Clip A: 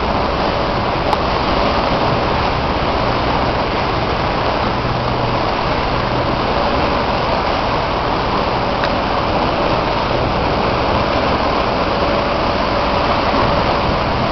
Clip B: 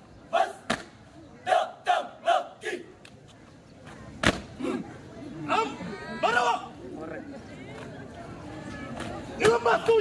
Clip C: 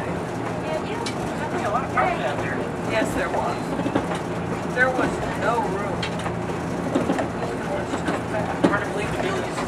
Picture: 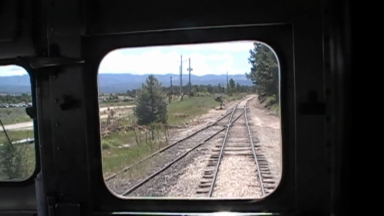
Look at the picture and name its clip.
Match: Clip C